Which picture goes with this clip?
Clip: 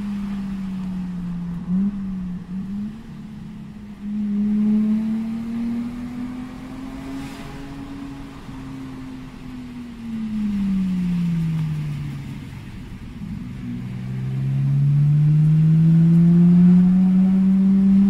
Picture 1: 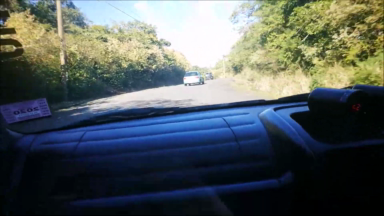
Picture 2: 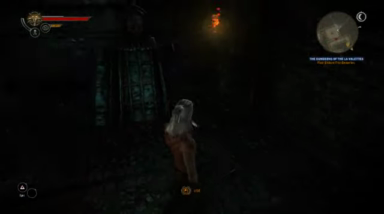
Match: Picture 1